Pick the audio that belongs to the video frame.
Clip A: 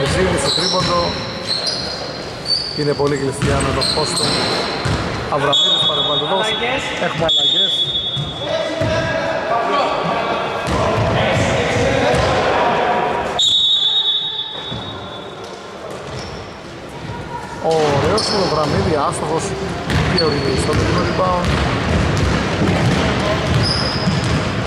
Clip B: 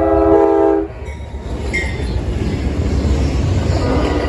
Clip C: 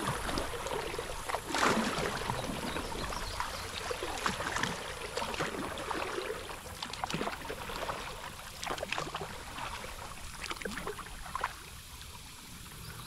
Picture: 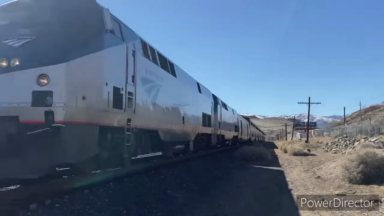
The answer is B